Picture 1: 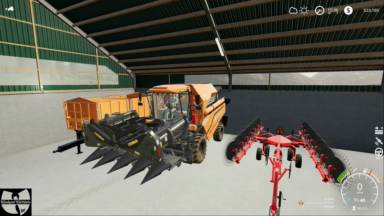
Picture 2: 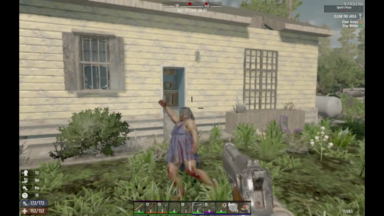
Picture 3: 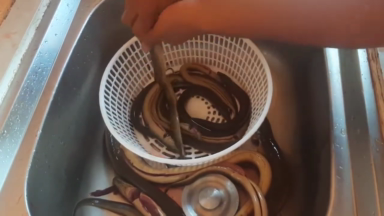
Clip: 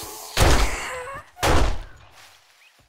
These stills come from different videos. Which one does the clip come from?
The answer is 2